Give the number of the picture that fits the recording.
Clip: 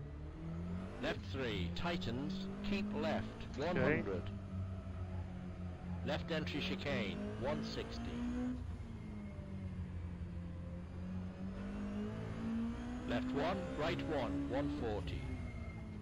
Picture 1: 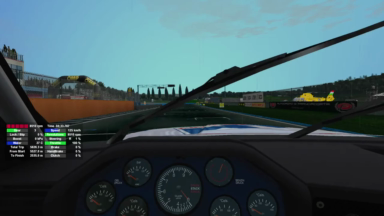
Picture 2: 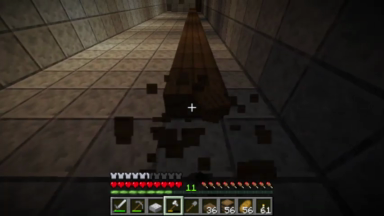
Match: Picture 1